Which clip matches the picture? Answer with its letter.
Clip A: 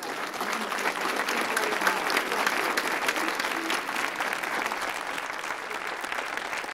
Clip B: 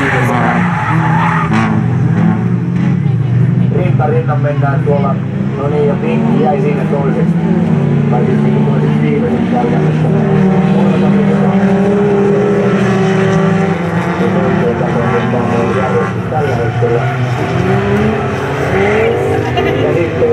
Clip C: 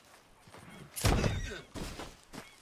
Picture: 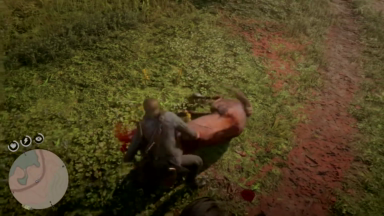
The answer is C